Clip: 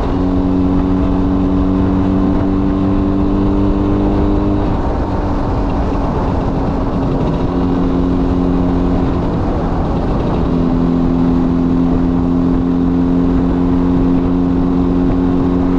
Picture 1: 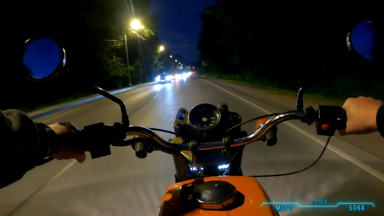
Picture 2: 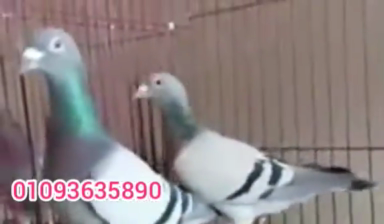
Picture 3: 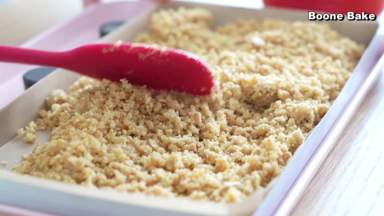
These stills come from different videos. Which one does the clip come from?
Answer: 1